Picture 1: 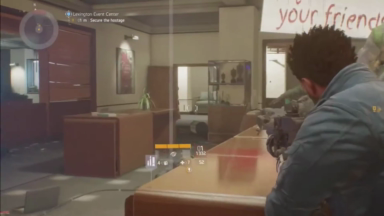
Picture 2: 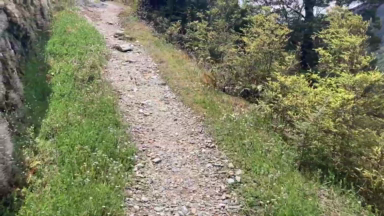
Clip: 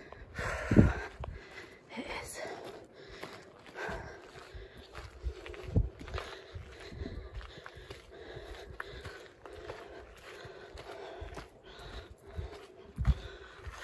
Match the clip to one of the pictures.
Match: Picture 2